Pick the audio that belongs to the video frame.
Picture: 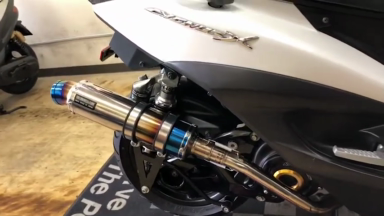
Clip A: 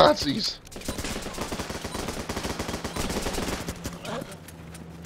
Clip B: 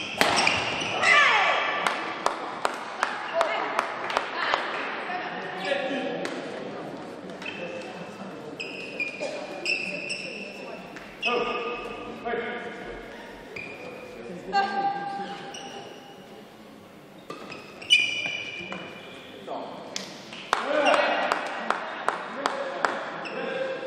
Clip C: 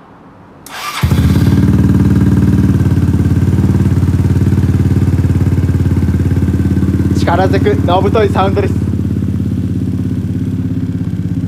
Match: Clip C